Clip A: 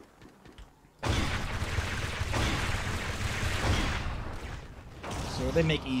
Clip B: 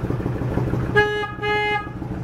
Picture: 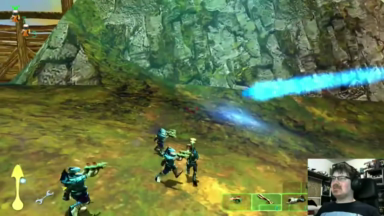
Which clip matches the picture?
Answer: A